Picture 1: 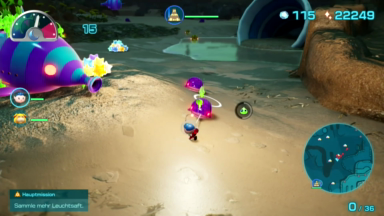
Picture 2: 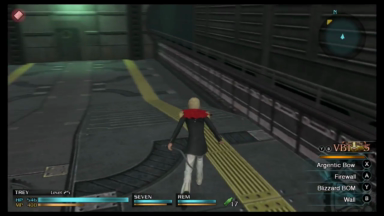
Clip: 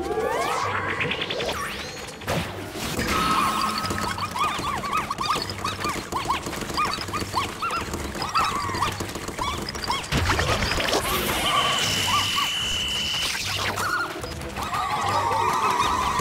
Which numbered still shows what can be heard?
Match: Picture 1